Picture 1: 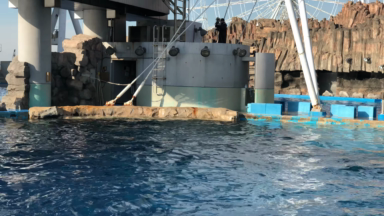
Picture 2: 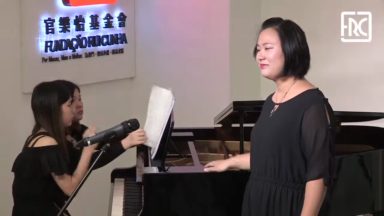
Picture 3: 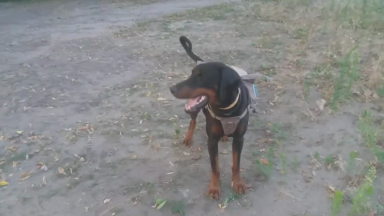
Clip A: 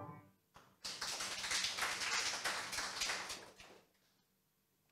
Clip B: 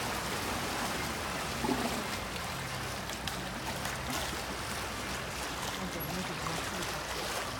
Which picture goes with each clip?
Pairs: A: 2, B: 1